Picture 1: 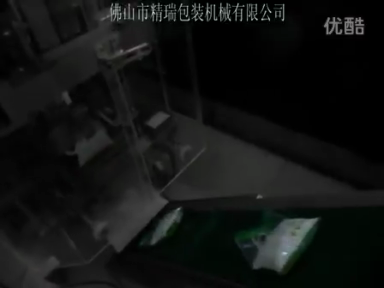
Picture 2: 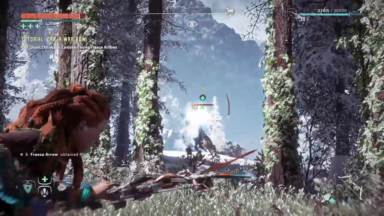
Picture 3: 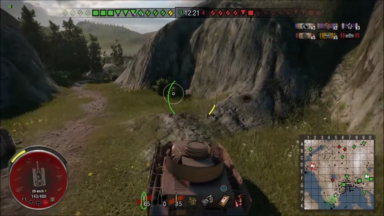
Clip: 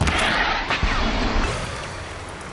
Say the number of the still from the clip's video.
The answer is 2